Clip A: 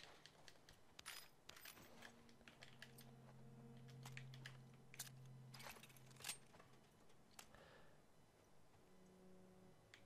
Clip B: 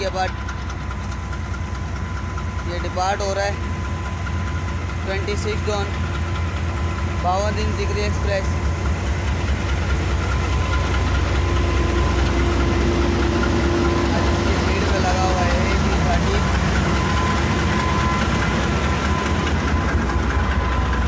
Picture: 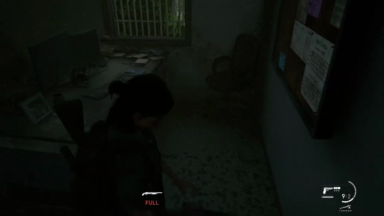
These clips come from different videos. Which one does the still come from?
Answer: A